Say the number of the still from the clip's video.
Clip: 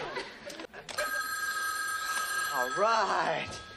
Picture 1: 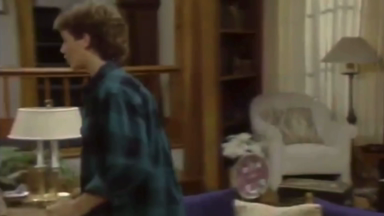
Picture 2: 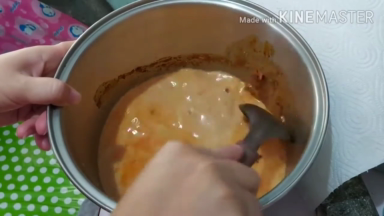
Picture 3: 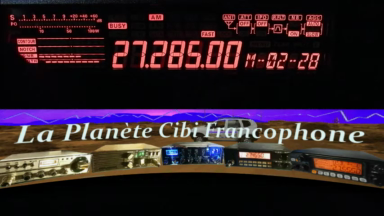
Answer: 1